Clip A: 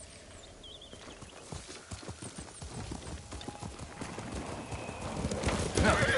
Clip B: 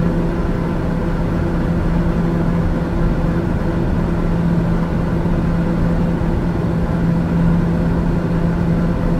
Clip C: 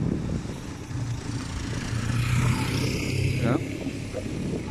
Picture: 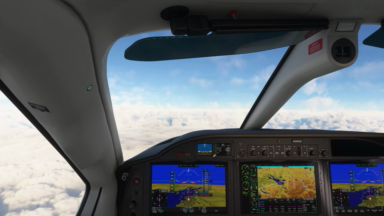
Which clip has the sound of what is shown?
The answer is B